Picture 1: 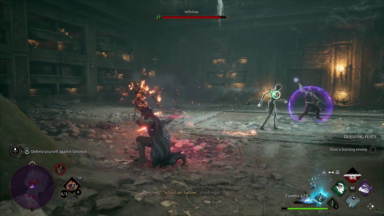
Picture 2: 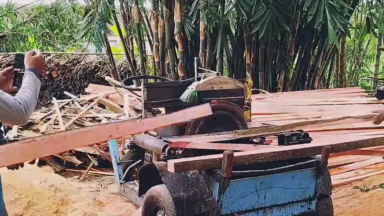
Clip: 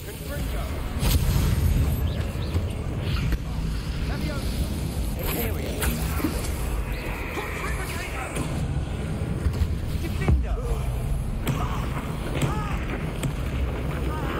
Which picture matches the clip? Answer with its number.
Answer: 1